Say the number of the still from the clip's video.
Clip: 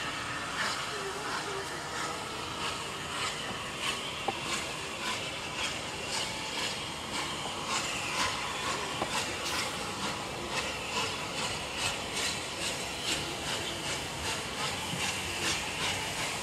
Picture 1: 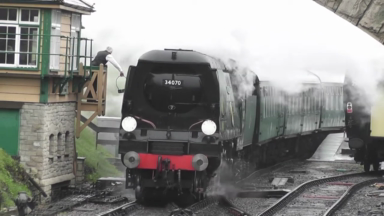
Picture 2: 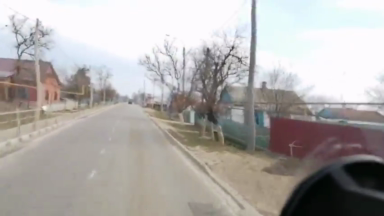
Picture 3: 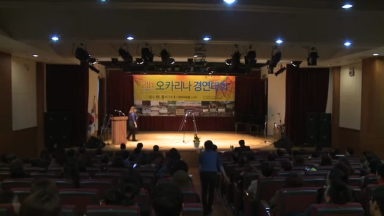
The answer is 1